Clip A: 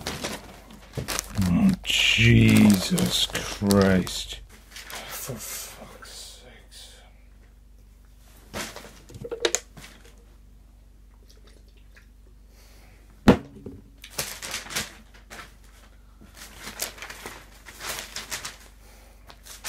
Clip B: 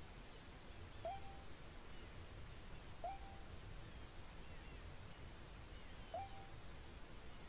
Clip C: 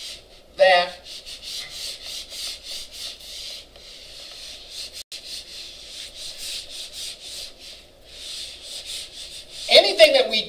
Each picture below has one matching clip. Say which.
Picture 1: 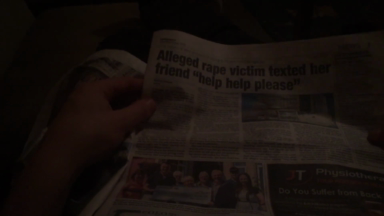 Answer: A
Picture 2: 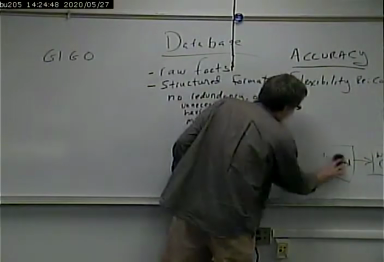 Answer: C